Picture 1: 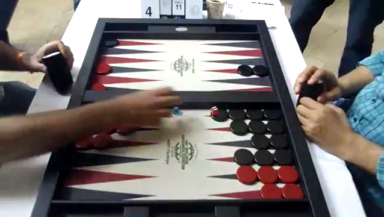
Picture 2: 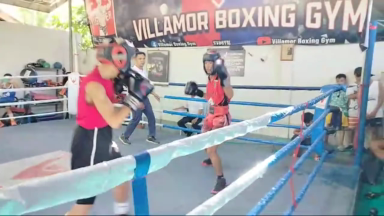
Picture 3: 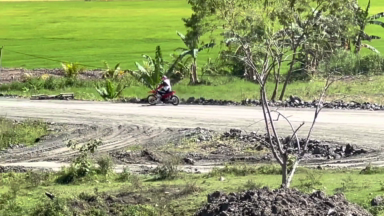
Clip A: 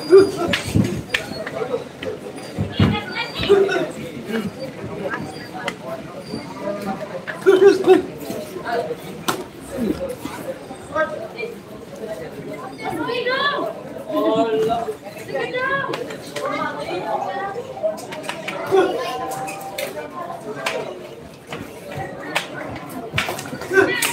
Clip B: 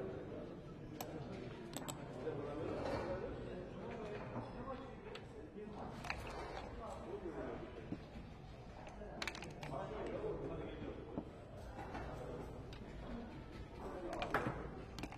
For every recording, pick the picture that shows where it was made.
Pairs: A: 2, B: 1